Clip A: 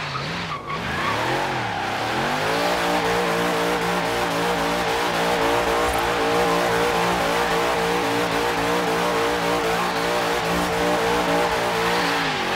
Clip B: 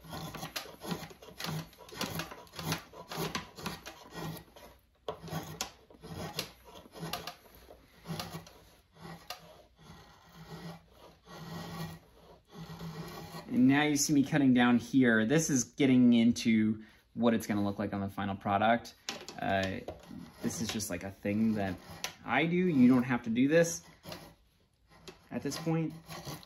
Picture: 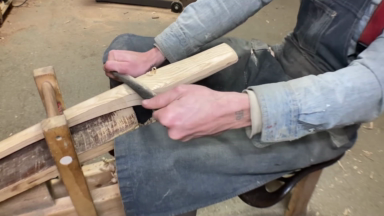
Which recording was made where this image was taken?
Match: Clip B